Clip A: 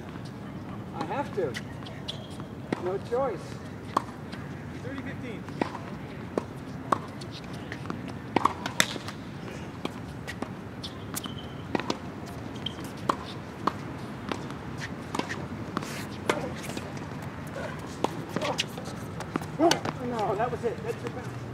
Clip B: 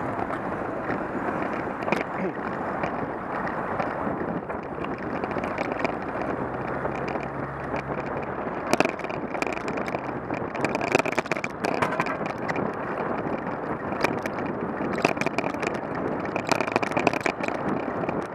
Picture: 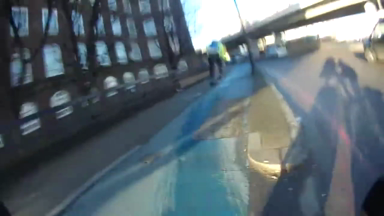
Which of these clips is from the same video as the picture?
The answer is B